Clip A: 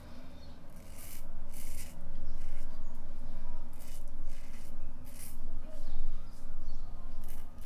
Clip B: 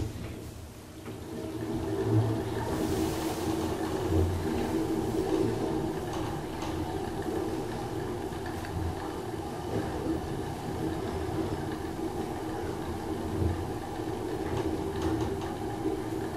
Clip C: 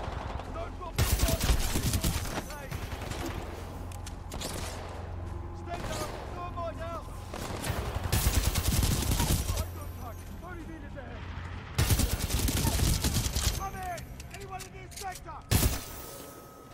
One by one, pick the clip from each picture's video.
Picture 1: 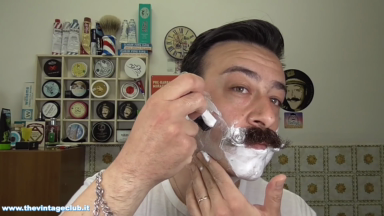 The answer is A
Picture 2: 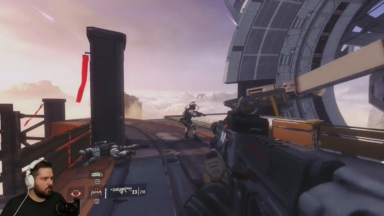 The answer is C